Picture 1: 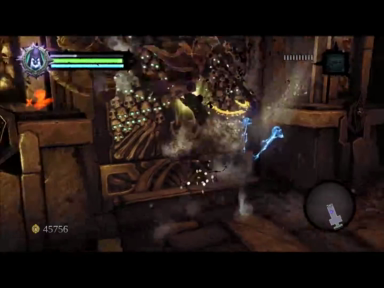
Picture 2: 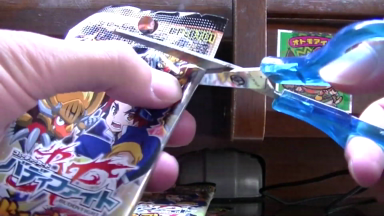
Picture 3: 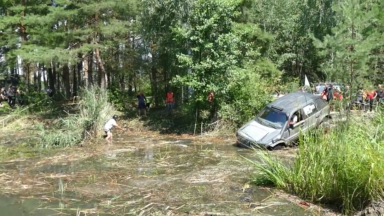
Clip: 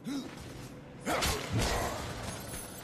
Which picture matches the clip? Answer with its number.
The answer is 1